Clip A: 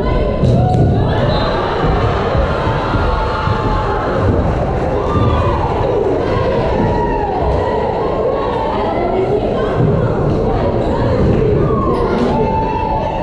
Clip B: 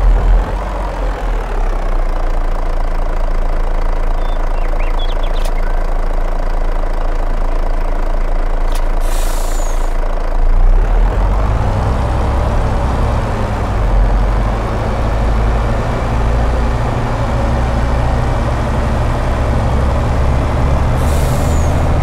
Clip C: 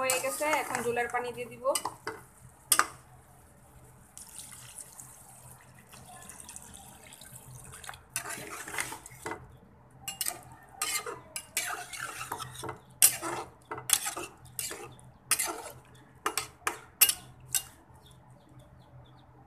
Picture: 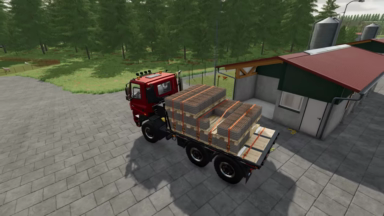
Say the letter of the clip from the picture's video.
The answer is B